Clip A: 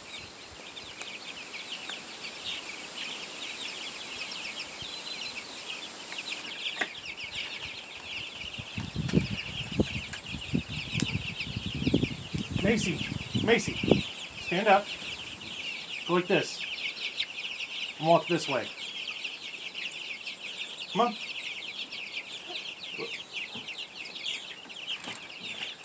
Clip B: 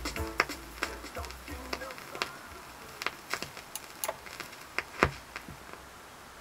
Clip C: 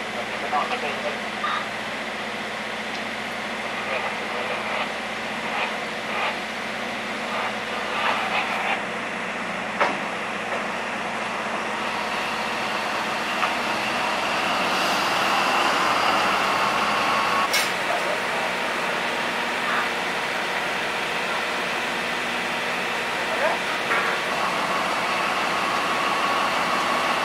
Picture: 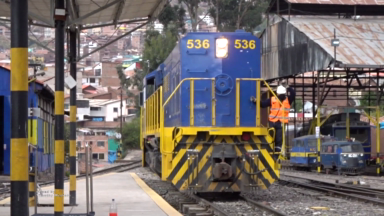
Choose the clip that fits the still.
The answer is C